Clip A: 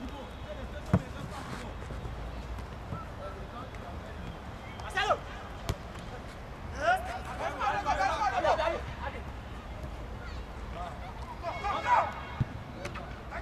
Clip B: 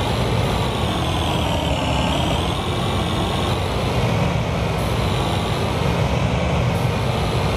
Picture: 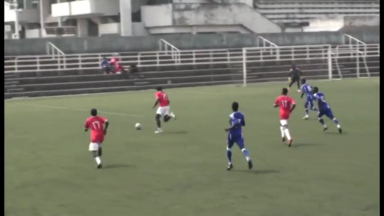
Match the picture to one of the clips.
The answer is A